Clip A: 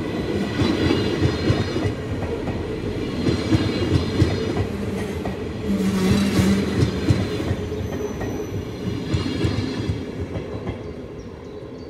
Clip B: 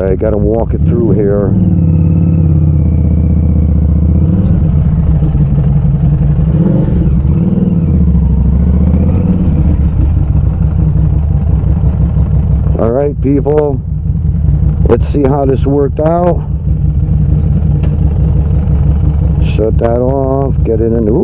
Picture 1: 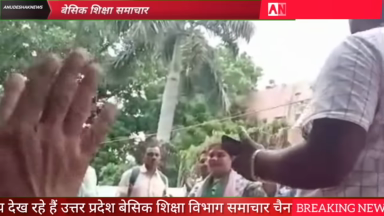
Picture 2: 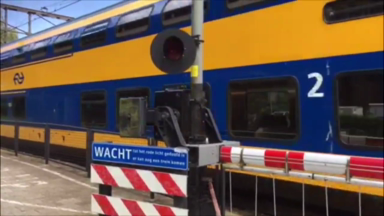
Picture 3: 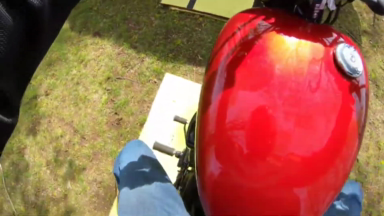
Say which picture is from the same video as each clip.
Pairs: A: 2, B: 3